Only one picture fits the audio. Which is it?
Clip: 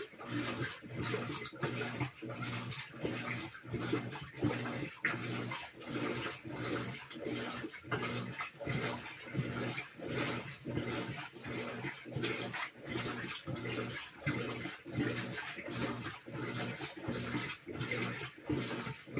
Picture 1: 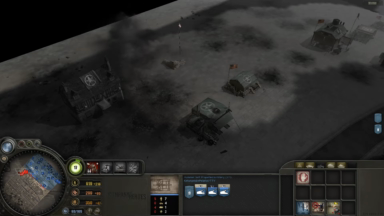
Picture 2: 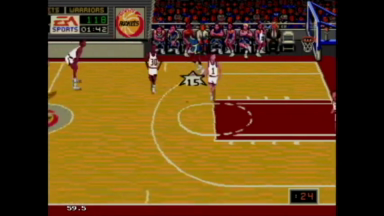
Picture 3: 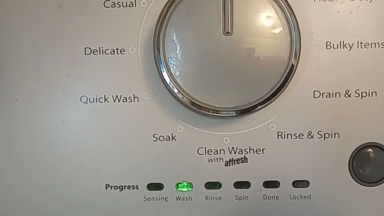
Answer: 3